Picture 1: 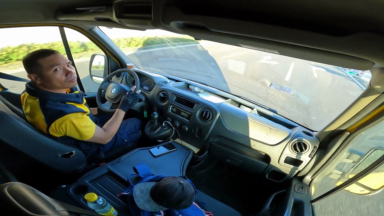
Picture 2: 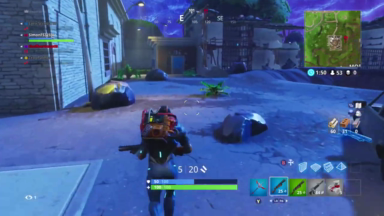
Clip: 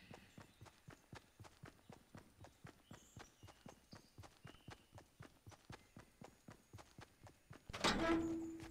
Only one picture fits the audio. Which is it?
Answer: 2